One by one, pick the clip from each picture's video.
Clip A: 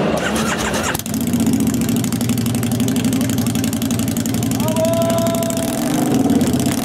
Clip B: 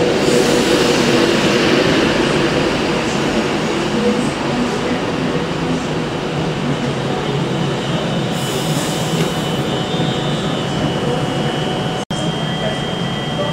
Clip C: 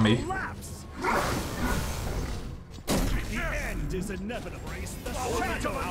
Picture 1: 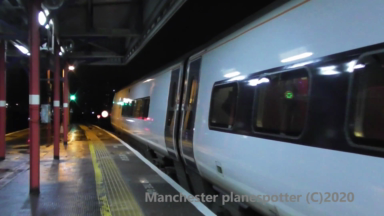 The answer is B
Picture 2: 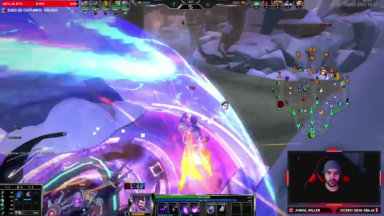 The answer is C